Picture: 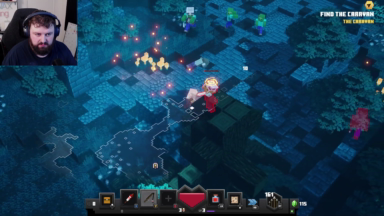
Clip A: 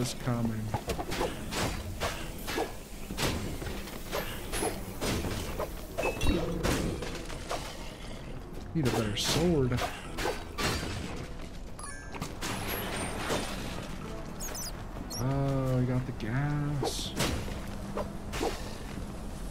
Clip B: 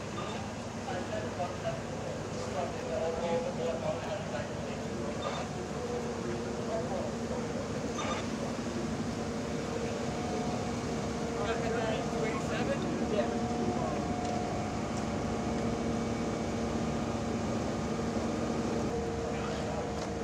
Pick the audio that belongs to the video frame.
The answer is A